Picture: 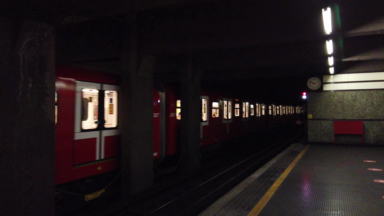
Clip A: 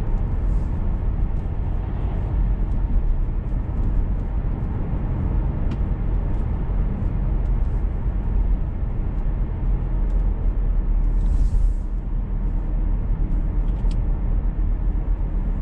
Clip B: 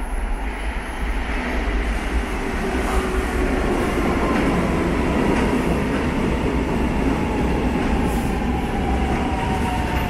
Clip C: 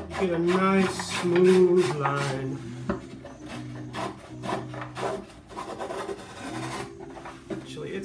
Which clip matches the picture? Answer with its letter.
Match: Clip B